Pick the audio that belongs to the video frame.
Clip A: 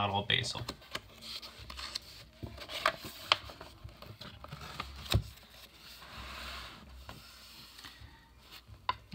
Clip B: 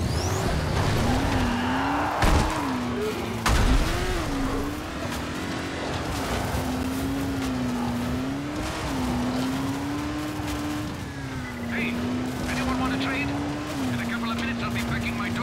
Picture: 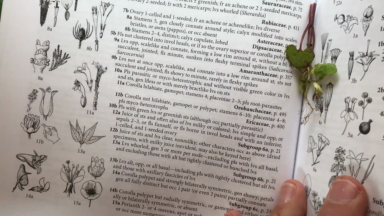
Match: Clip A